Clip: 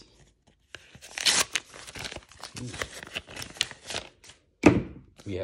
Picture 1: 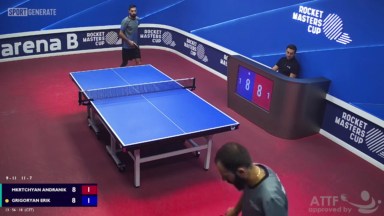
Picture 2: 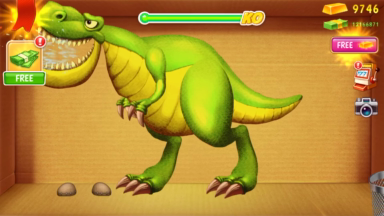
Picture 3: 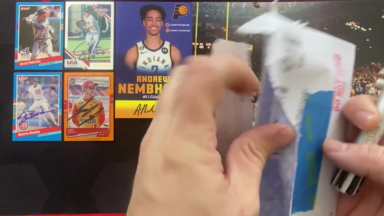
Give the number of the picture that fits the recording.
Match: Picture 3